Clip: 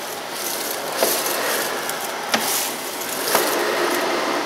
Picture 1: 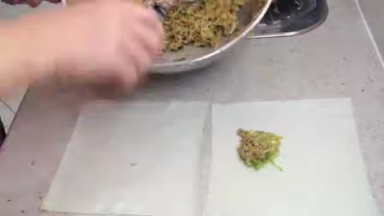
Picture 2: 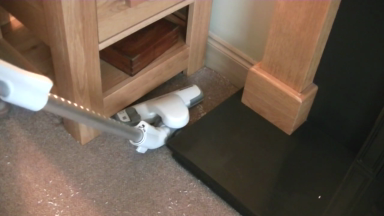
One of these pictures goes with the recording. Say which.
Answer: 2